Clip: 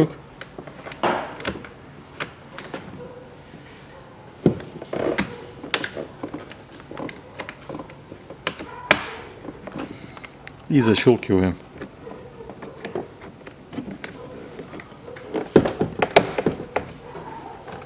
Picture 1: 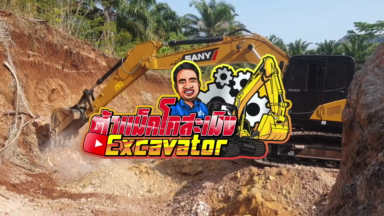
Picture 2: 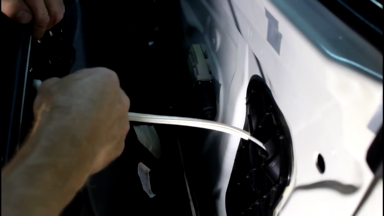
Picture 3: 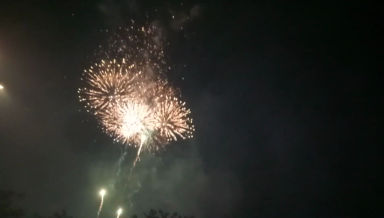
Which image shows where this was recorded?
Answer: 2